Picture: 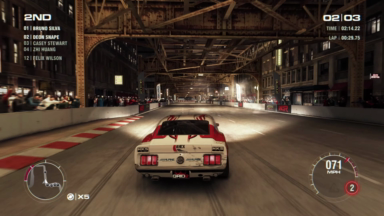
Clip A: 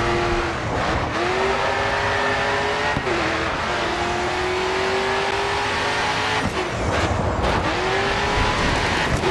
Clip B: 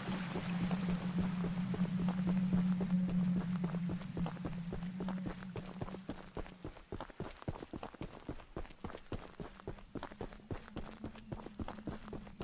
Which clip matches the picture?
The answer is A